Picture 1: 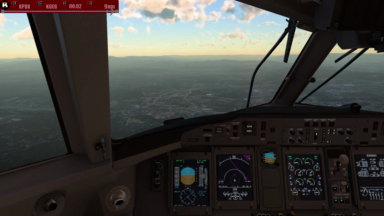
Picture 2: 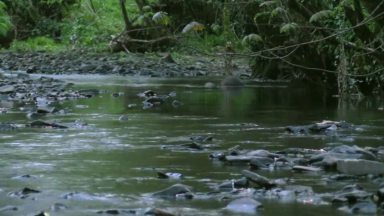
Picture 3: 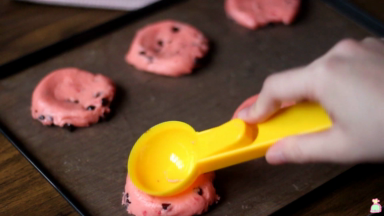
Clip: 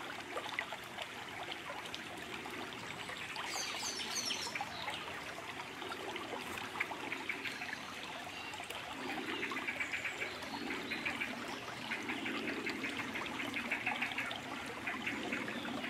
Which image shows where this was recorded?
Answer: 2